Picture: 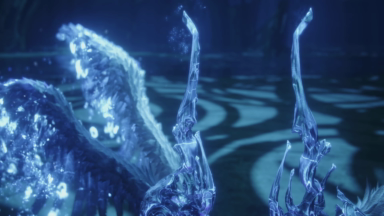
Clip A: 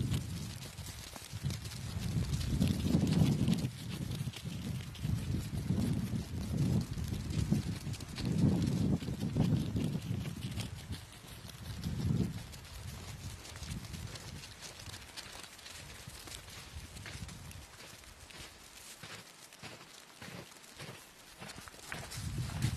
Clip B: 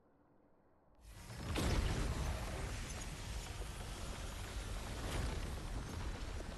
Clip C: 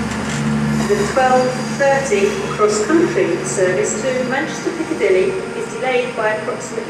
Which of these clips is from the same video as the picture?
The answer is B